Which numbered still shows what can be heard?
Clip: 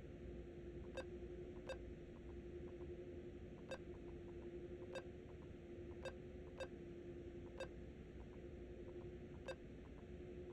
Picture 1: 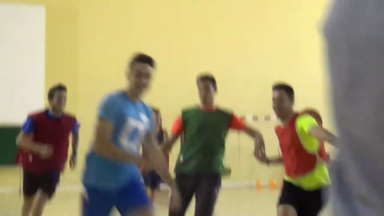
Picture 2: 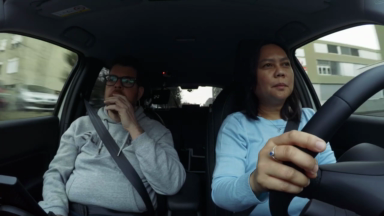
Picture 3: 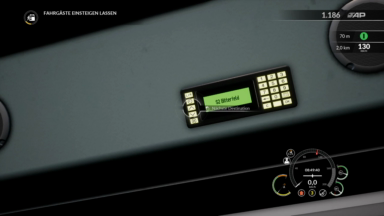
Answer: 3